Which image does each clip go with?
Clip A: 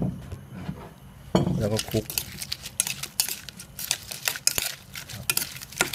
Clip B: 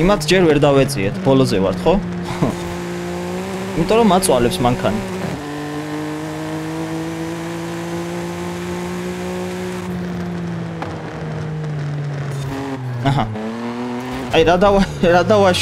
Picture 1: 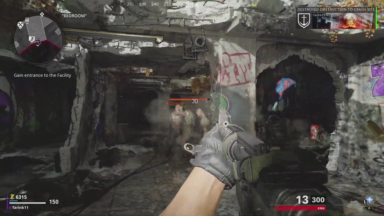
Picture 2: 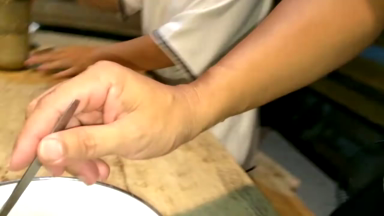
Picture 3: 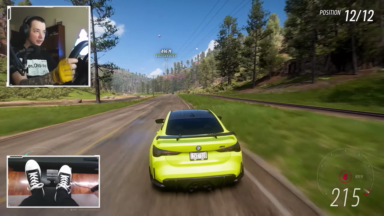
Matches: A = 2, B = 3